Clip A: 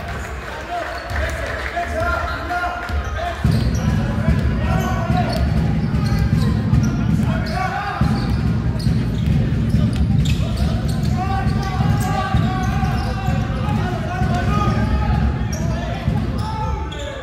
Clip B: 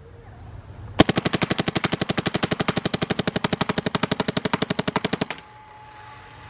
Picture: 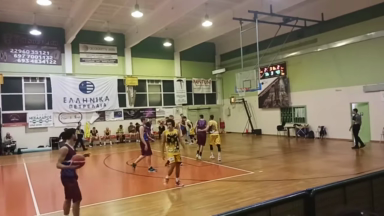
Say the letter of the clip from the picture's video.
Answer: A